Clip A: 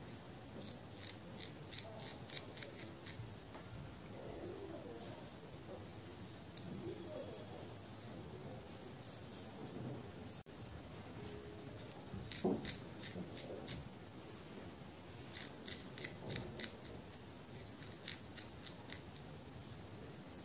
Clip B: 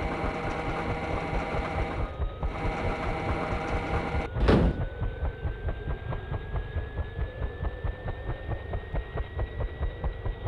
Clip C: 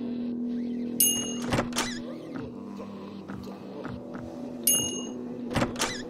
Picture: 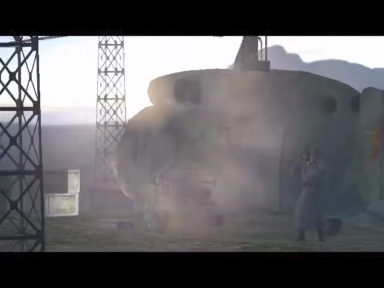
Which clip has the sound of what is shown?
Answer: B